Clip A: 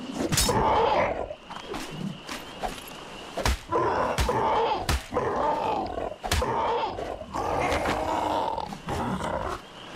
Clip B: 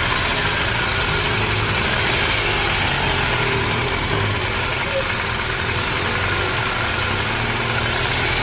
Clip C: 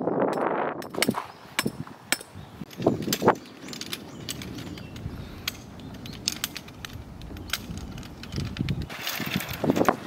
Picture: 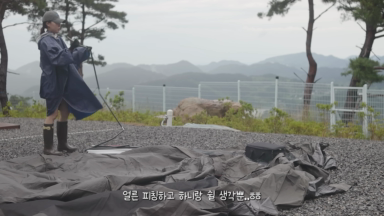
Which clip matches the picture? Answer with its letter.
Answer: C